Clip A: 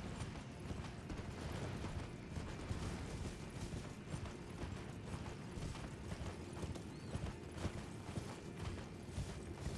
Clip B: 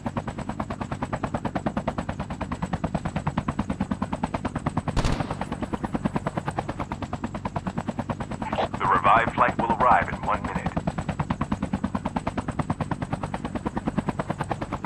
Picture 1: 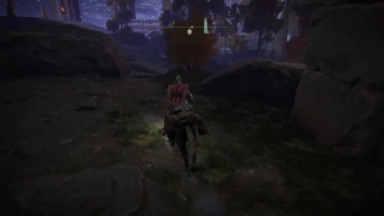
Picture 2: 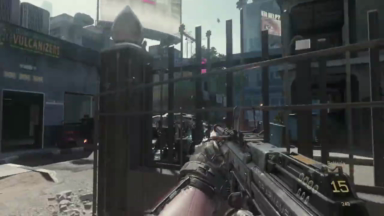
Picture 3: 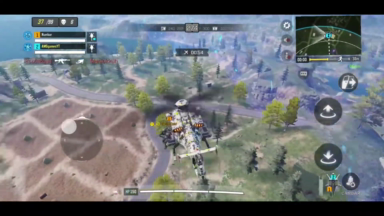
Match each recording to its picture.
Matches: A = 1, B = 3